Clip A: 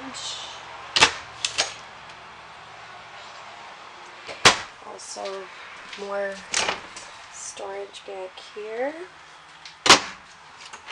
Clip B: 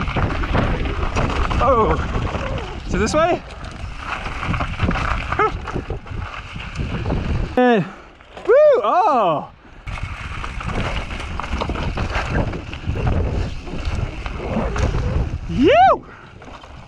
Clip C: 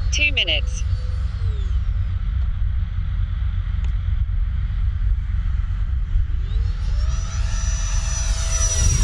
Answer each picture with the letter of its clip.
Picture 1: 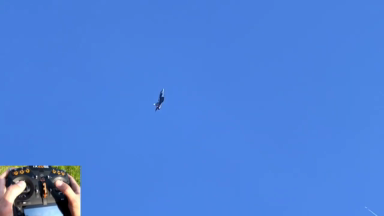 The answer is C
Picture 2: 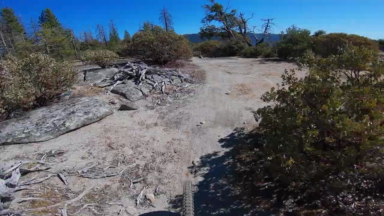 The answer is B